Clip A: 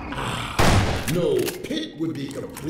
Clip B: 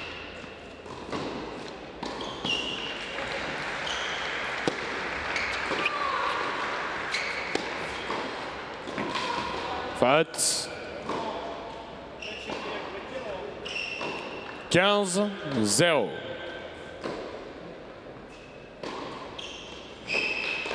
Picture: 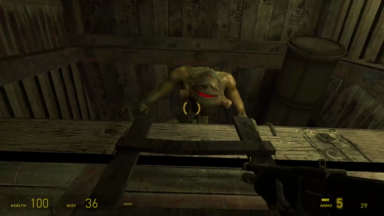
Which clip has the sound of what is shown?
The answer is A